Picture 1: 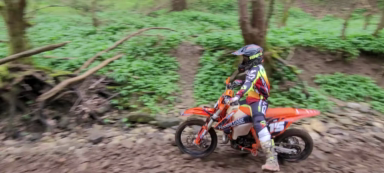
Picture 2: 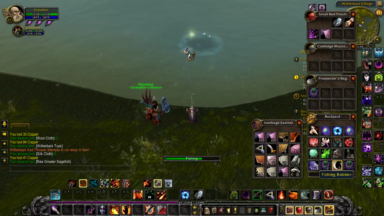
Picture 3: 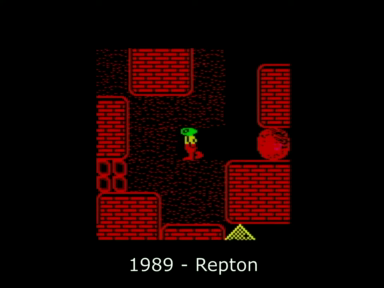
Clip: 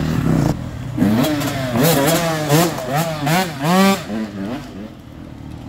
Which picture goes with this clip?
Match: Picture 1